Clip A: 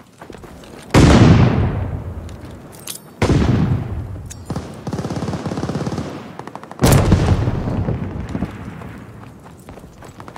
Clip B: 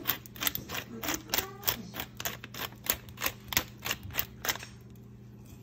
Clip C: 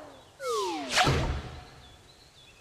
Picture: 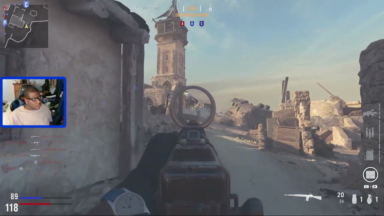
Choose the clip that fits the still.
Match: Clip A